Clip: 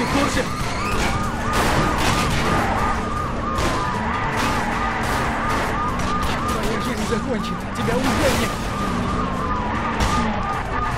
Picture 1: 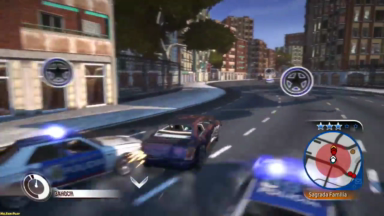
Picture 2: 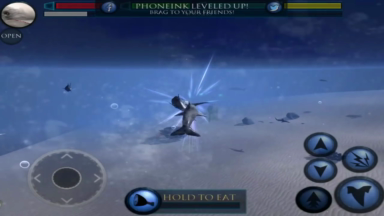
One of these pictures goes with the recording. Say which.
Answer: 1